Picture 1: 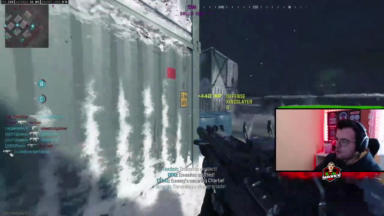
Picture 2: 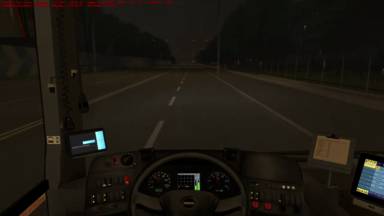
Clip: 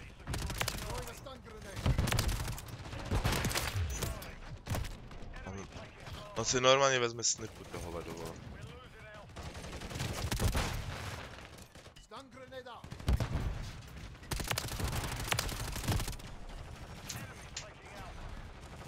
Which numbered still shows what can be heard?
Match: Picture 1